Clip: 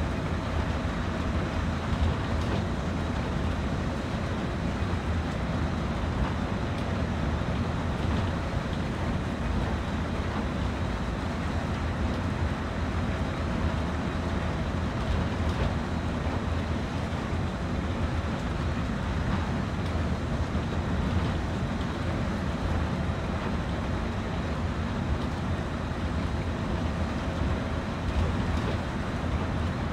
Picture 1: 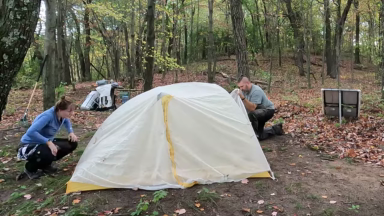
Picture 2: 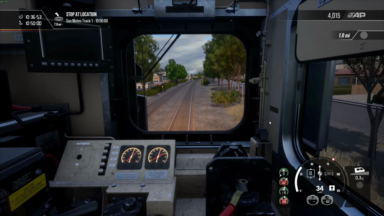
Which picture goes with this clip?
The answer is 2